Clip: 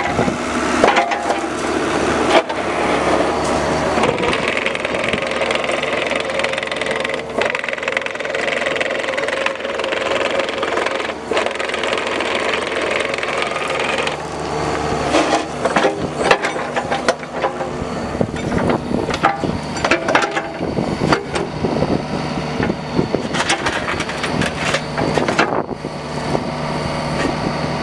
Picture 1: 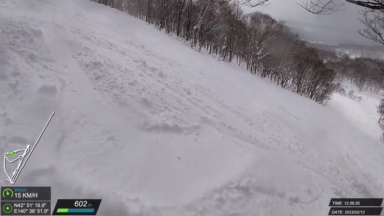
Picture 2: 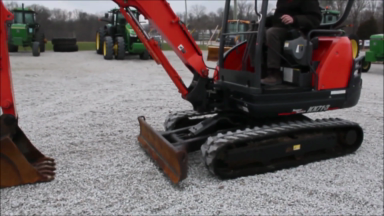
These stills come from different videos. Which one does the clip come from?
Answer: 2